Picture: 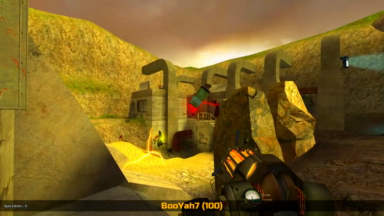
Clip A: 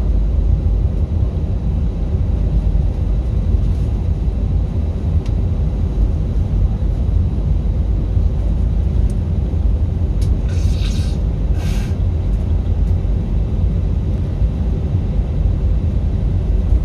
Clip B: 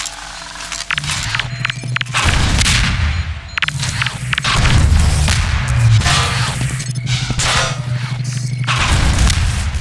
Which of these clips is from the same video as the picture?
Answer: B